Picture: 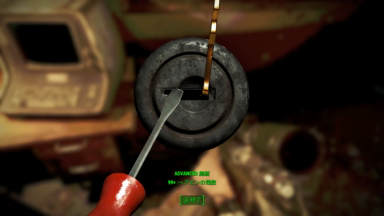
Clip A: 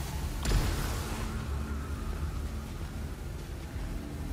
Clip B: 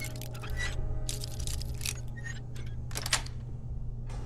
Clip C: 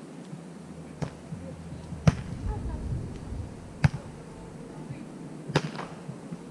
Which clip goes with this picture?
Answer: B